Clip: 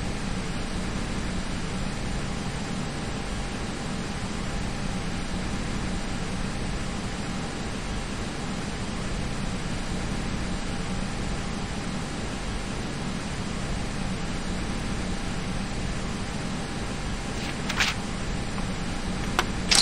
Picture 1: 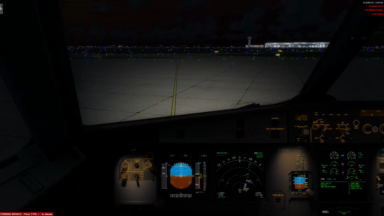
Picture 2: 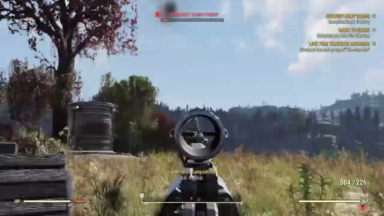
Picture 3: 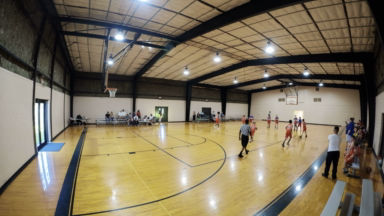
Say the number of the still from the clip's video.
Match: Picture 1